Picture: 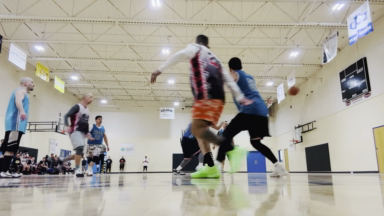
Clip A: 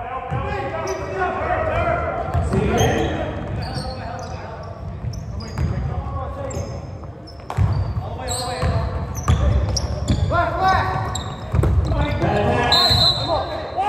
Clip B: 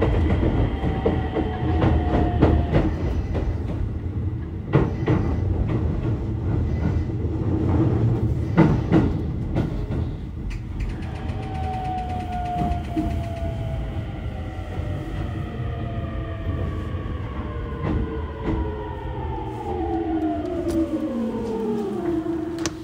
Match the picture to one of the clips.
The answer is A